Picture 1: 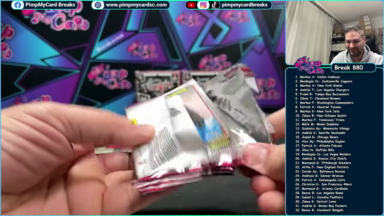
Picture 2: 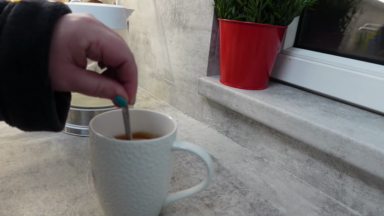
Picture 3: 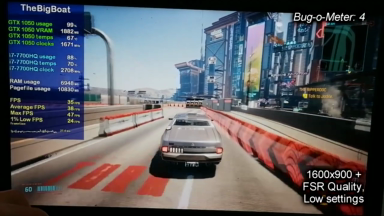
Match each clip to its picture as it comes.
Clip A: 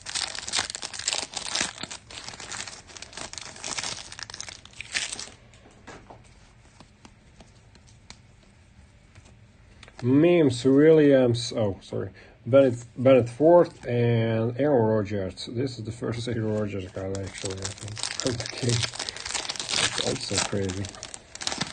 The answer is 1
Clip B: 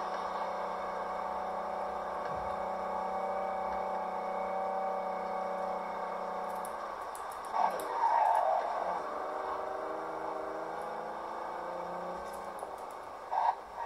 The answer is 3